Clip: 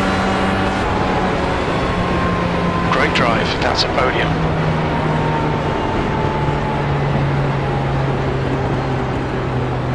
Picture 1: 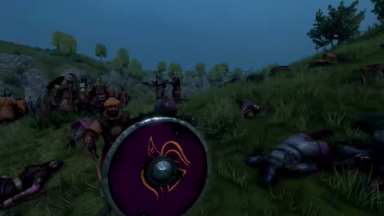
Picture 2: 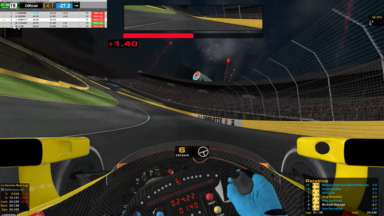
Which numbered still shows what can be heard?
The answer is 2